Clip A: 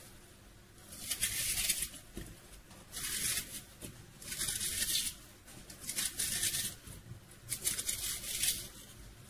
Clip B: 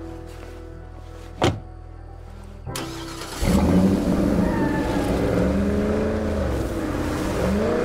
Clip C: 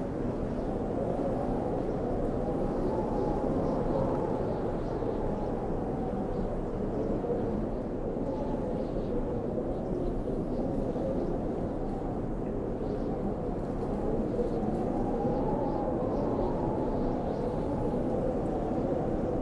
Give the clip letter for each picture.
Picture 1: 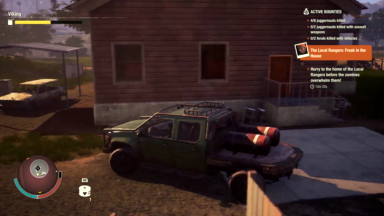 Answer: B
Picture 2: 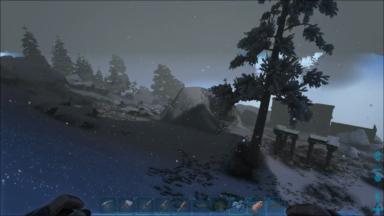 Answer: C